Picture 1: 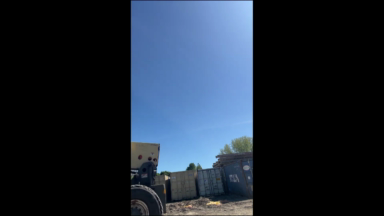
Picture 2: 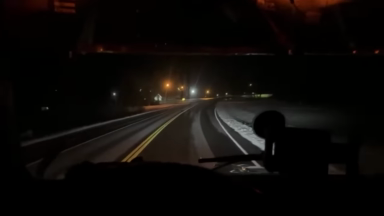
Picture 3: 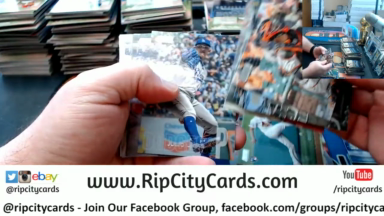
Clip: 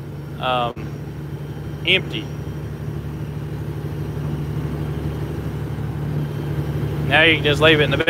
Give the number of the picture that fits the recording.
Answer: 2